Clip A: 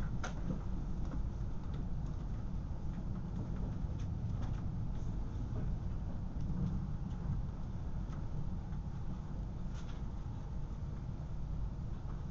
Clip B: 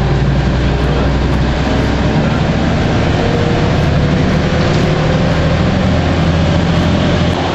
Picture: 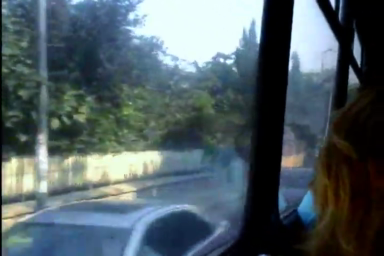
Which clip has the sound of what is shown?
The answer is B